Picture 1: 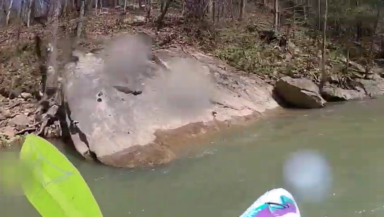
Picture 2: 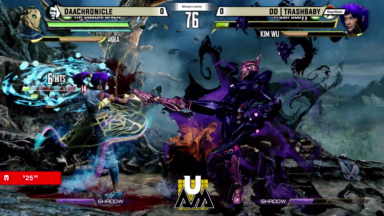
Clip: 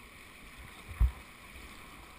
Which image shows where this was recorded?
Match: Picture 1